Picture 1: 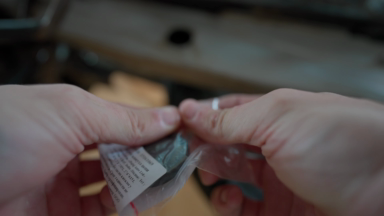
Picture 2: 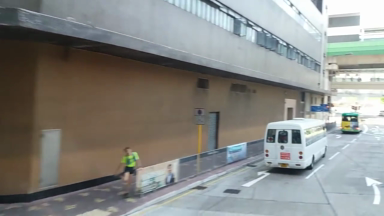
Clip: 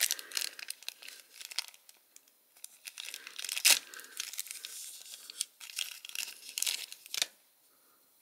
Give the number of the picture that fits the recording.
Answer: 1